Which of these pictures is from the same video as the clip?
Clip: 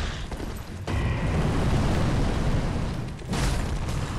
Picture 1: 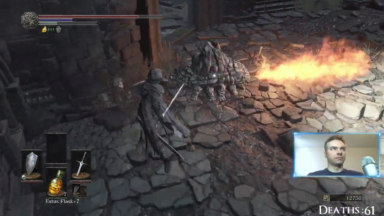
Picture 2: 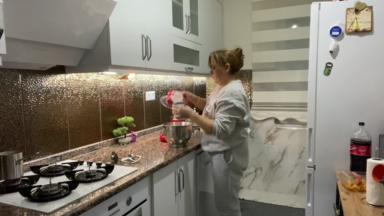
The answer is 1